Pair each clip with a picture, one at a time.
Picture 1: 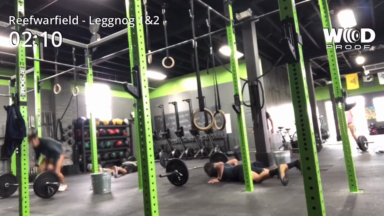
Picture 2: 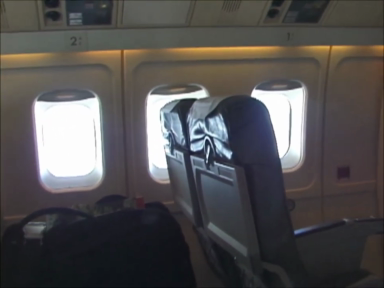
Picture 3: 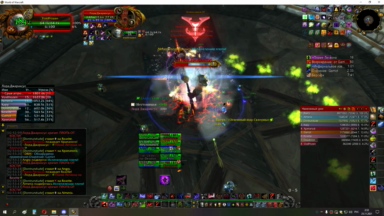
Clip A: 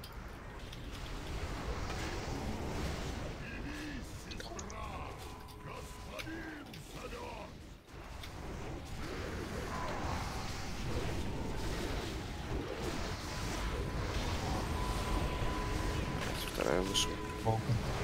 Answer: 3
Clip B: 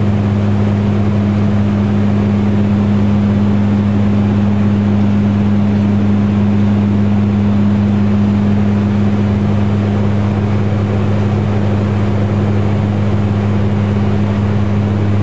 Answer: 2